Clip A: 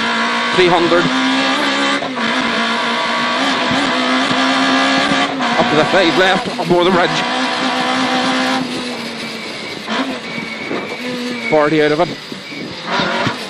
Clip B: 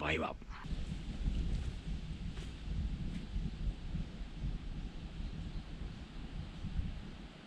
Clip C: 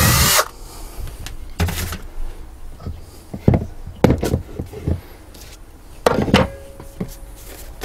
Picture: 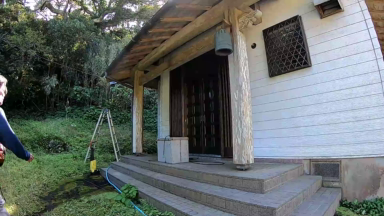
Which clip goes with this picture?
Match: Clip B